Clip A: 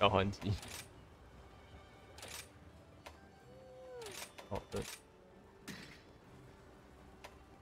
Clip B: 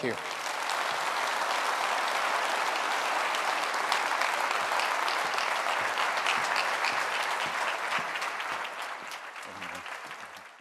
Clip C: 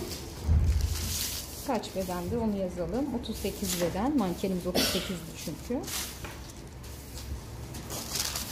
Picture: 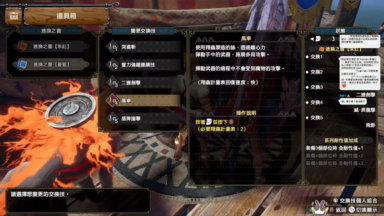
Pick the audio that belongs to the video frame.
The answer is A